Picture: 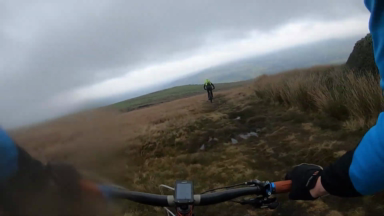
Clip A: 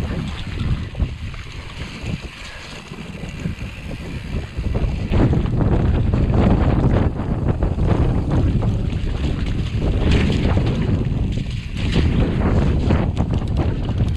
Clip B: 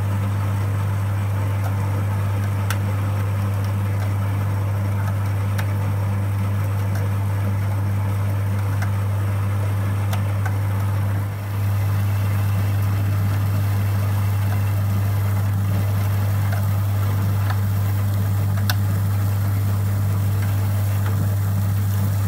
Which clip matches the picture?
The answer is A